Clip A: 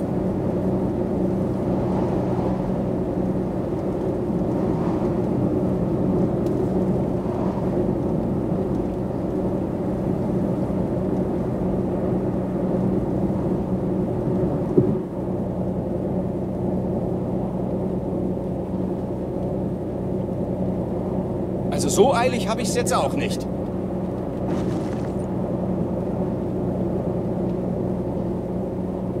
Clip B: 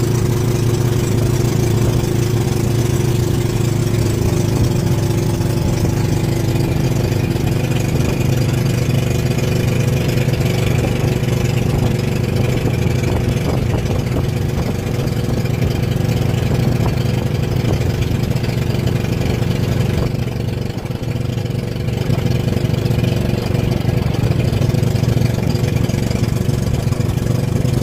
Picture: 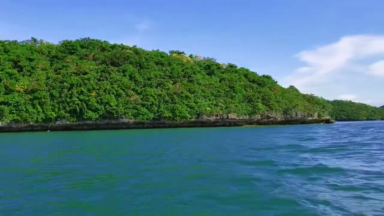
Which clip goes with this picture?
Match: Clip B